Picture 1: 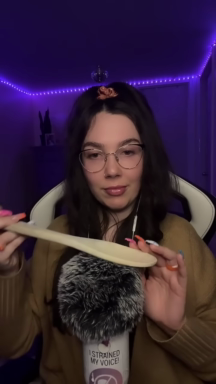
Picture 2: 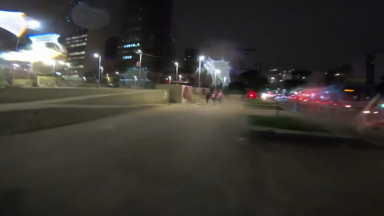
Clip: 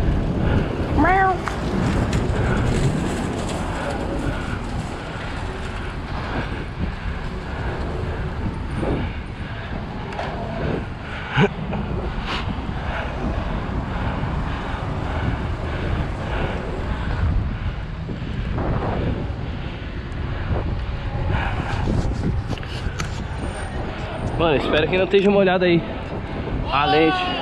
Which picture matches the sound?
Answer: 2